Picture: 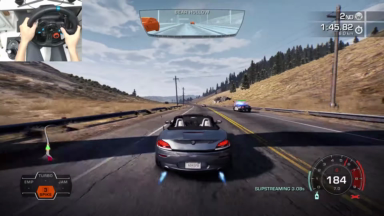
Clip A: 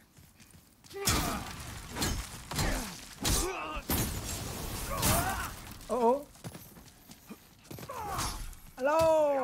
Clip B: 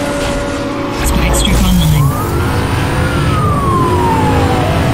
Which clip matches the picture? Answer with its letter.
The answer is B